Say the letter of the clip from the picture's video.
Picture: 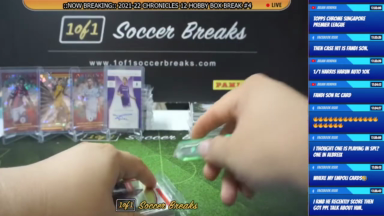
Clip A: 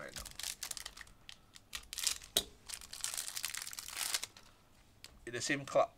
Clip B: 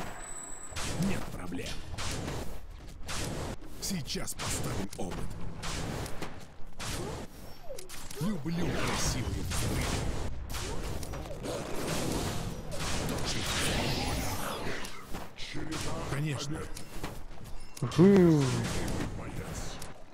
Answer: A